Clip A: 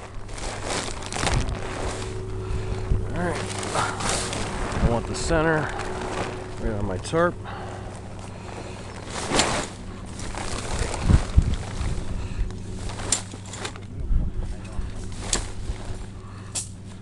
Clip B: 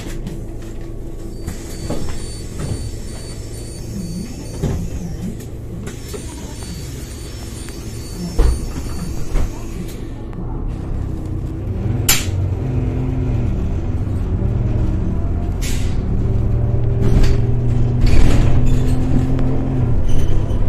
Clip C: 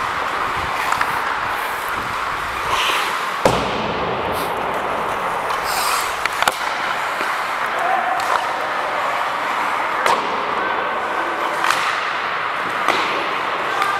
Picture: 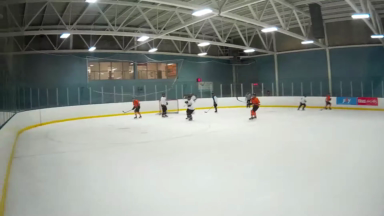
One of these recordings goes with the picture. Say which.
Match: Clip C